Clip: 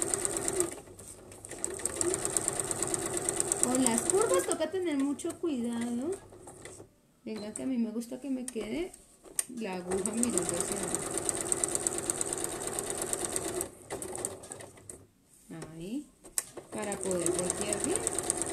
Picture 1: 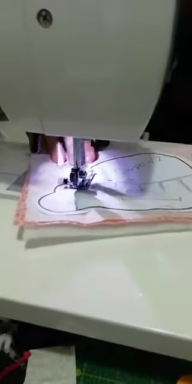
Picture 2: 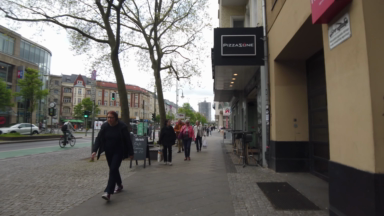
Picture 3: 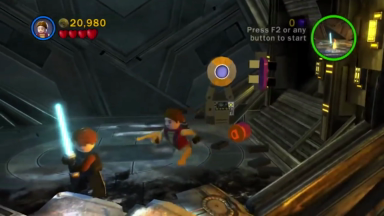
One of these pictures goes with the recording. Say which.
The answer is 1